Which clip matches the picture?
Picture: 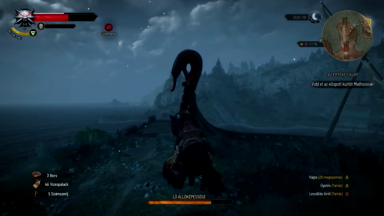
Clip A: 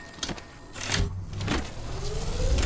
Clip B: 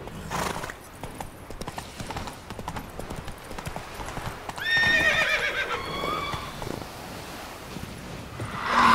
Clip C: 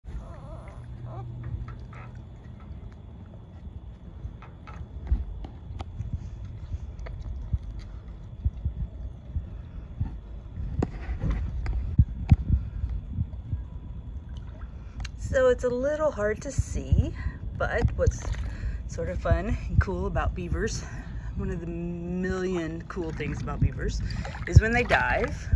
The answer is B